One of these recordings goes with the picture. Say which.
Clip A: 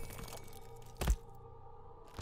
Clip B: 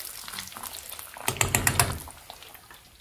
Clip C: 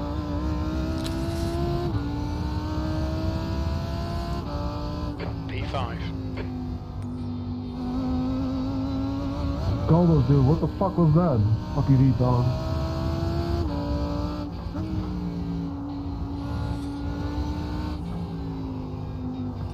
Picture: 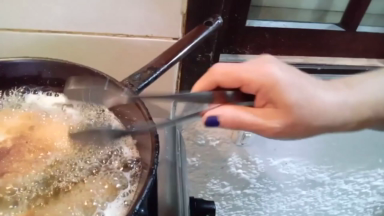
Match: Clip B